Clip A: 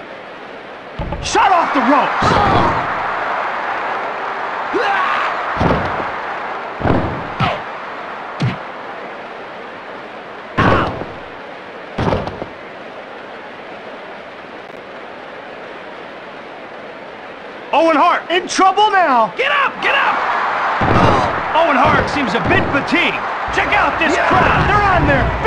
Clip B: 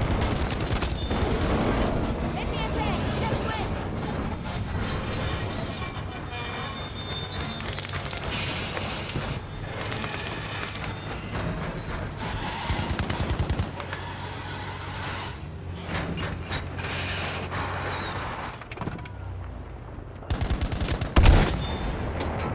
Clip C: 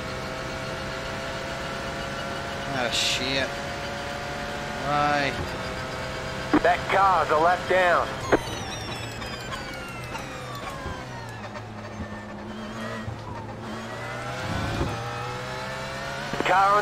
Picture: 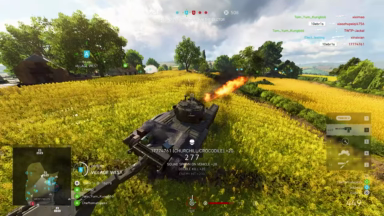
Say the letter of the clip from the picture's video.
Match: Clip B